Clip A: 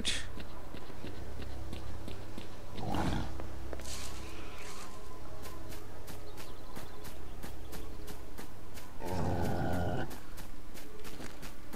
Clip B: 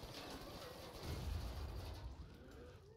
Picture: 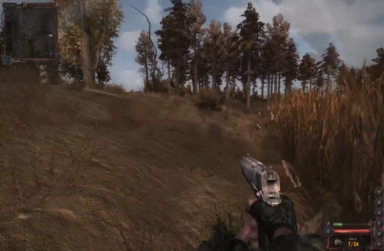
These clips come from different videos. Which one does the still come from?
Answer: A